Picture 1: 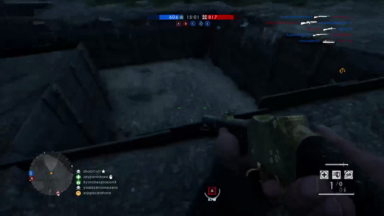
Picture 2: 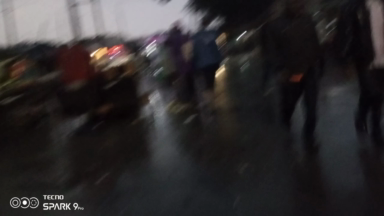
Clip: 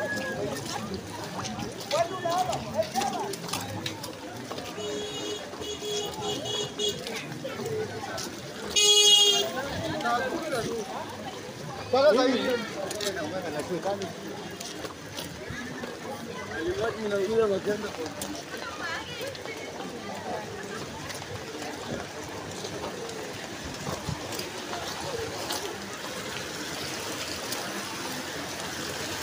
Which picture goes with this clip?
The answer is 2